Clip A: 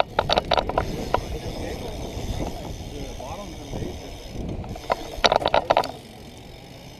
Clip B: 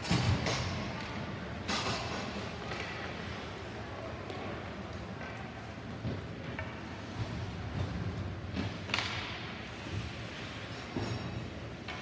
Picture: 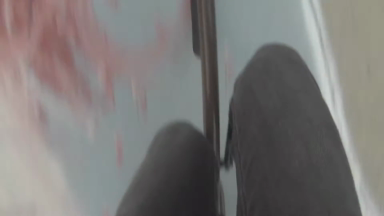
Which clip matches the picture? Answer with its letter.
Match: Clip A